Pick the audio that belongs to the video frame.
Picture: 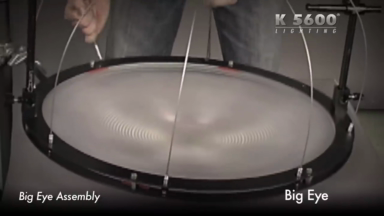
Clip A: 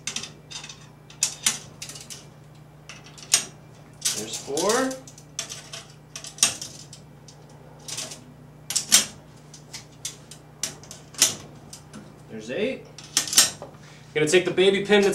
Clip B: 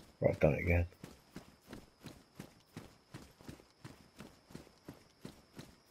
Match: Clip A